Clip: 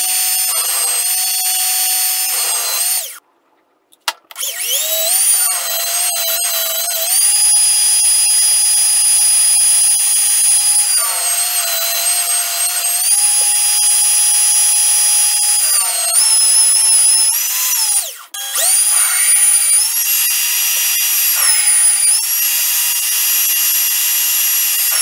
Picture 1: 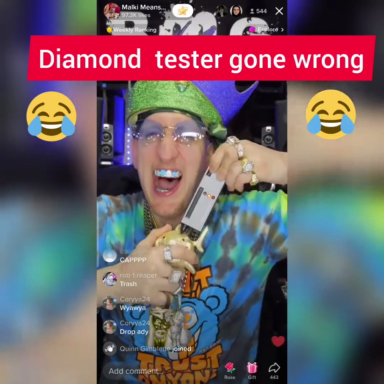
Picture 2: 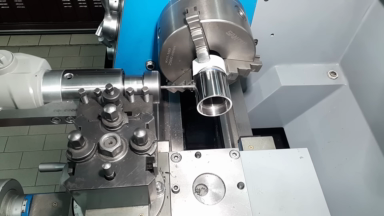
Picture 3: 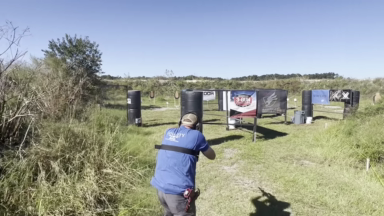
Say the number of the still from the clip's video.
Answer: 2